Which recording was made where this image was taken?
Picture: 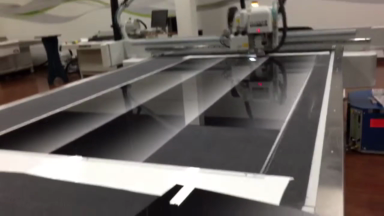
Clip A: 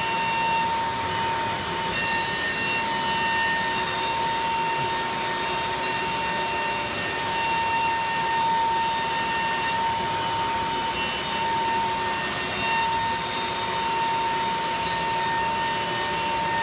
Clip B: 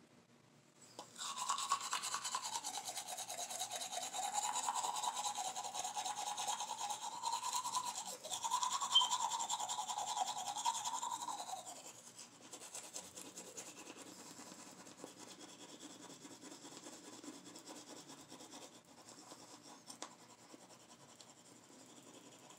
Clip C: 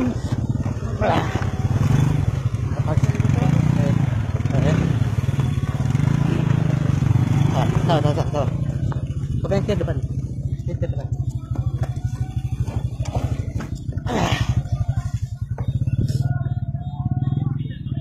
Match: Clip A